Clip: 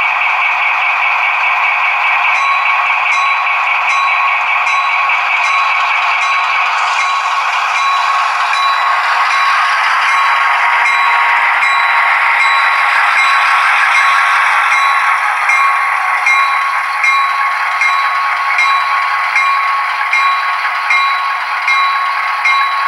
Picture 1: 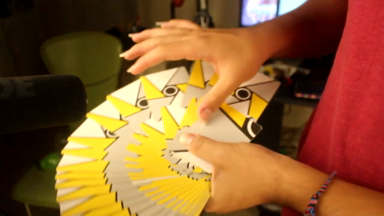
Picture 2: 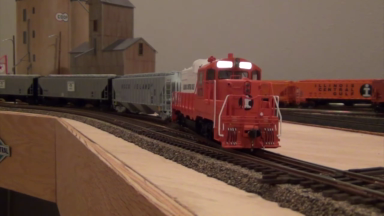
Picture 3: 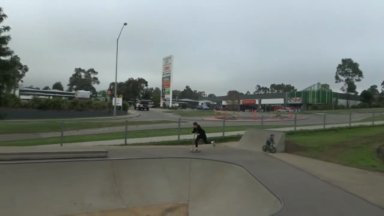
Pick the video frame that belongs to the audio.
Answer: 2